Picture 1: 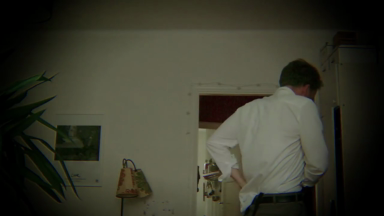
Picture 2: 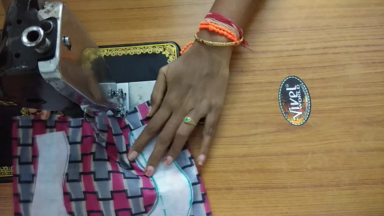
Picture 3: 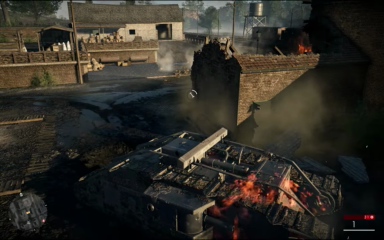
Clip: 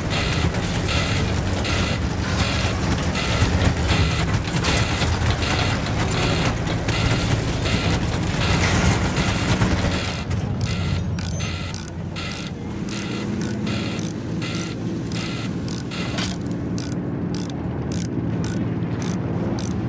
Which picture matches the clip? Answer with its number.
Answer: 3